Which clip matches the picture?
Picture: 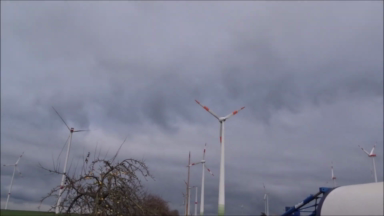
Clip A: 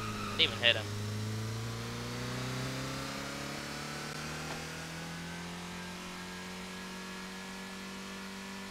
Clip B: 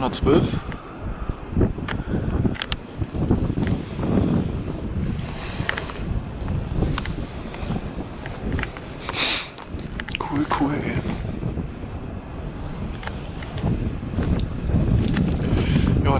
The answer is B